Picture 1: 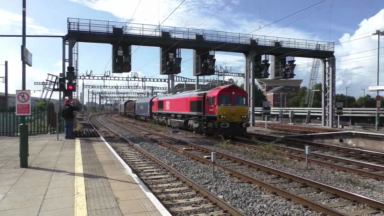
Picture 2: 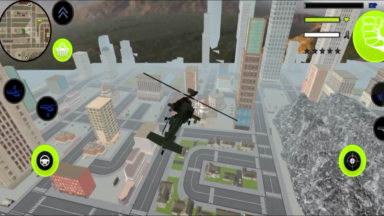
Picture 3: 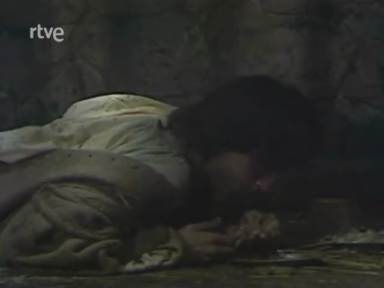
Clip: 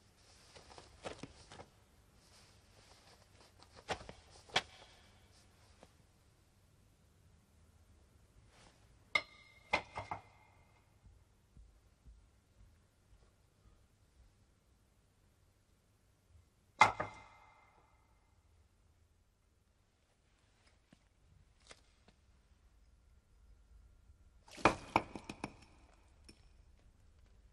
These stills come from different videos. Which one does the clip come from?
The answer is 3